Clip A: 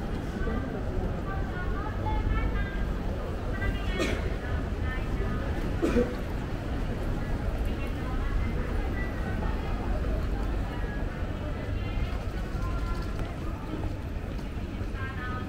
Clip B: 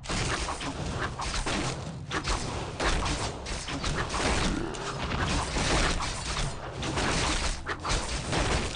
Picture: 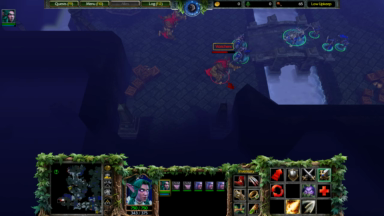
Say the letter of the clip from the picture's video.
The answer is B